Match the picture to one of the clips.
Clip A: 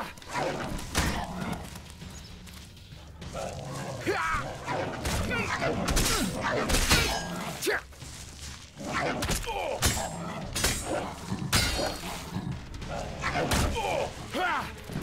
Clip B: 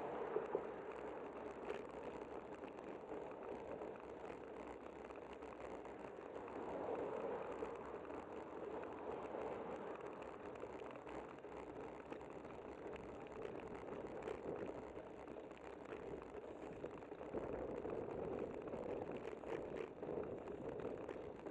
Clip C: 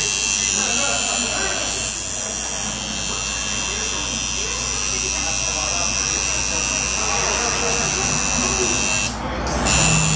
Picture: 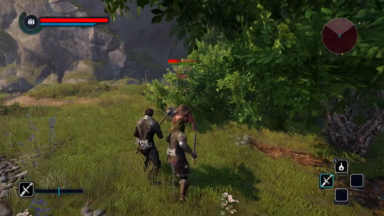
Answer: A